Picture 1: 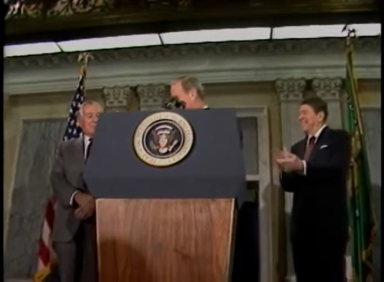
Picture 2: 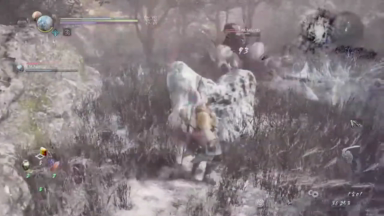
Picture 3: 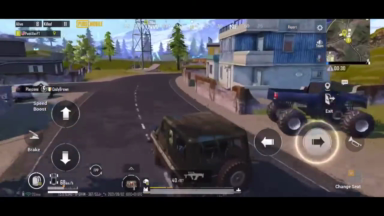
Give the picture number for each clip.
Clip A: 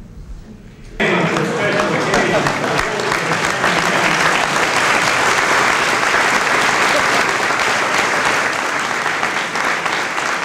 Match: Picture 1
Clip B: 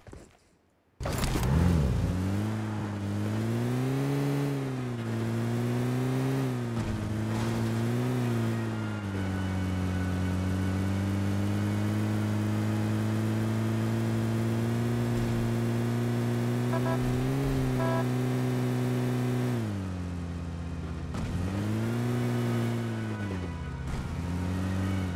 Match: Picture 3